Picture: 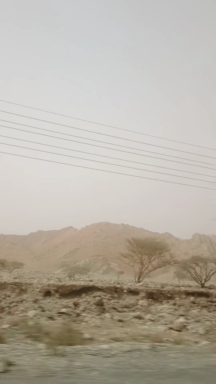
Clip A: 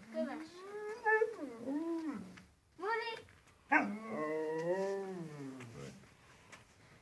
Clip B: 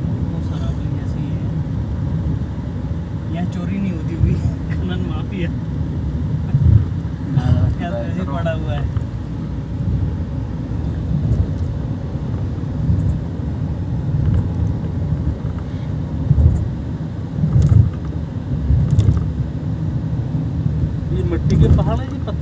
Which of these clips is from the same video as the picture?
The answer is B